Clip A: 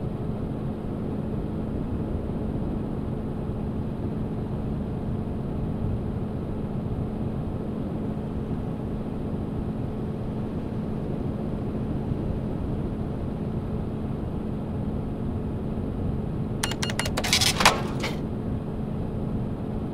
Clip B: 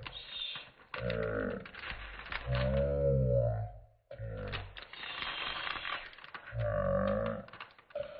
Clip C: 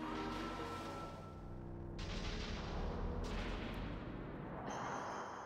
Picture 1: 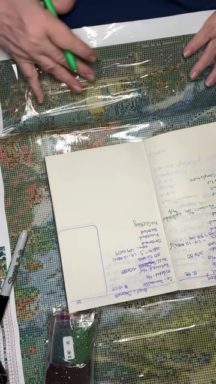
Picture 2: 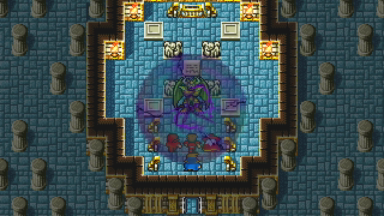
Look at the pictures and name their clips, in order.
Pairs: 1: B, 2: C